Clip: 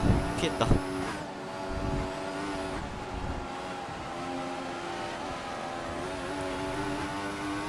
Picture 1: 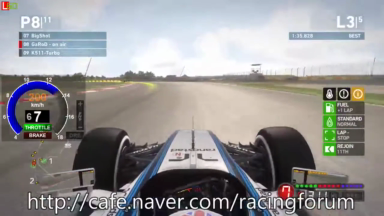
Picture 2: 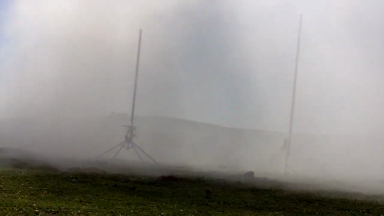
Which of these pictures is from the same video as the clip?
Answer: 1